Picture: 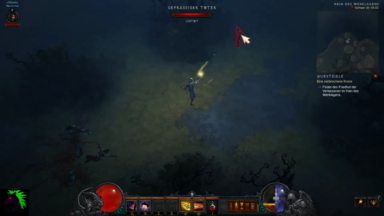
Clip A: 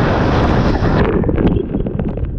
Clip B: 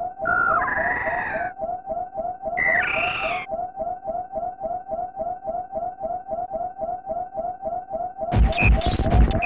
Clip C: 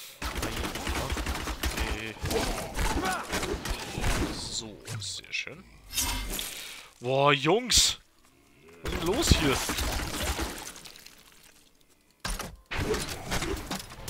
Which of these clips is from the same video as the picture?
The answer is C